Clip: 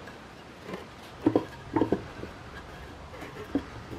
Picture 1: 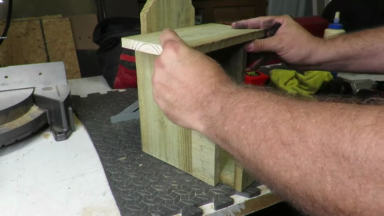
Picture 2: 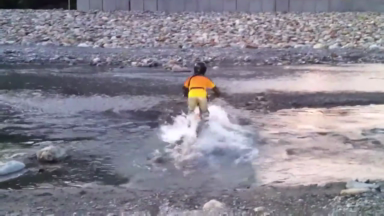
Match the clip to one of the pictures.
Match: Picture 1